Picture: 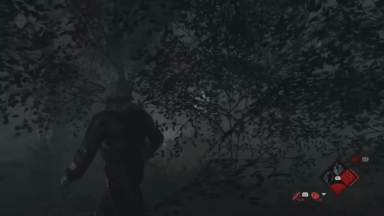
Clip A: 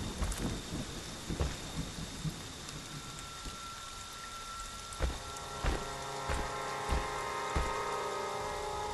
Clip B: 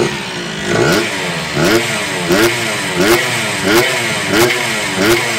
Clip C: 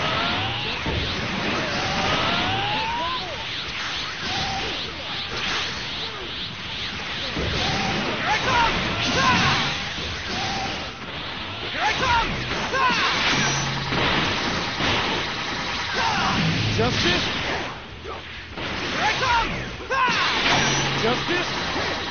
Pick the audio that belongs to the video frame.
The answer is A